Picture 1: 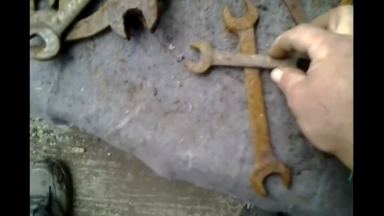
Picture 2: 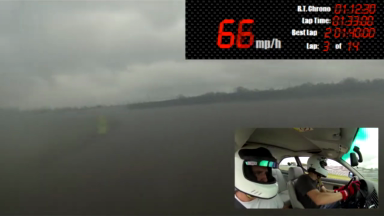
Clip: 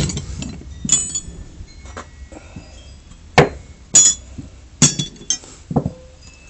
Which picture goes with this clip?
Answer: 1